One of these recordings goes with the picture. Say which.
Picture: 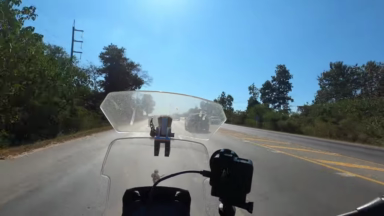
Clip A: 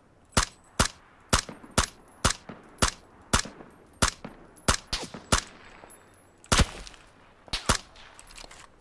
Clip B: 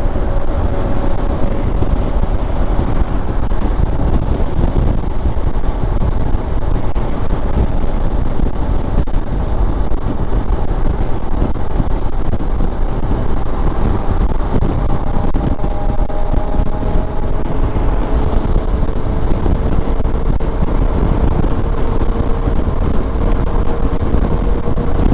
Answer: B